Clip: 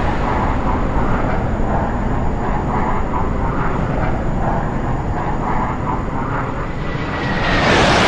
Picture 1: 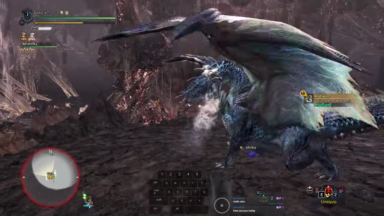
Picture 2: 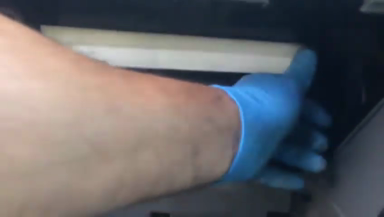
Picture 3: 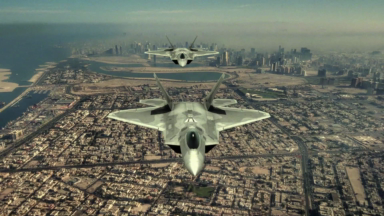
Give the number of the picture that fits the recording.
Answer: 3